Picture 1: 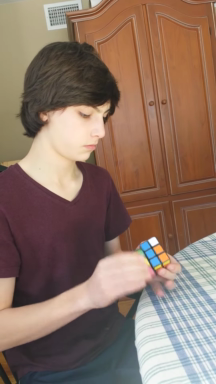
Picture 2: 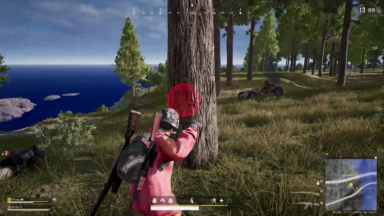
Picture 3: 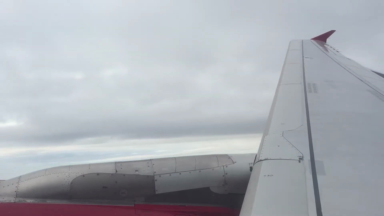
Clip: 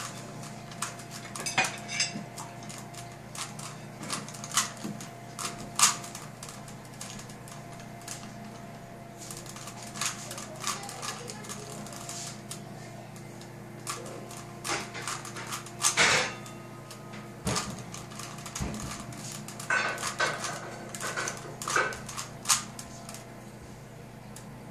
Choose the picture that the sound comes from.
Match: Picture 1